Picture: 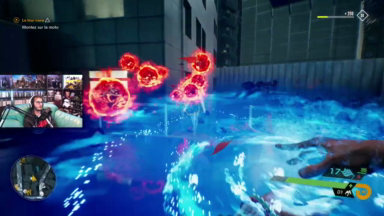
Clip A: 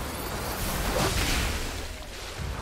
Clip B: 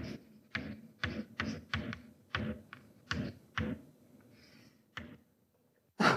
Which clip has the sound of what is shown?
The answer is A